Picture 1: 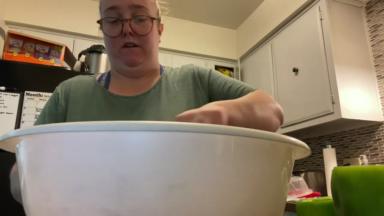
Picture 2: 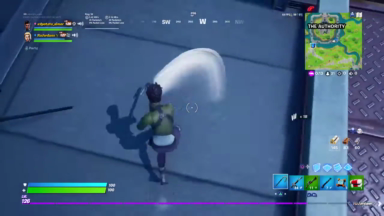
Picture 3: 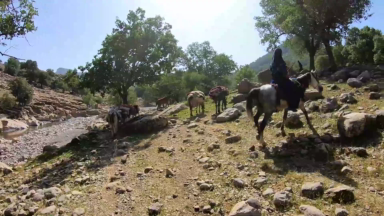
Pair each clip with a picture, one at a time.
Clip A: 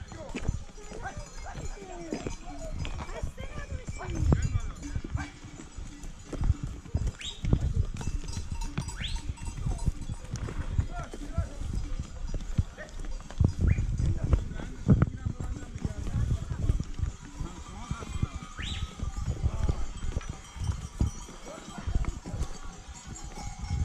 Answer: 3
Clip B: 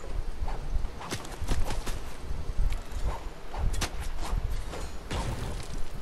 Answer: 2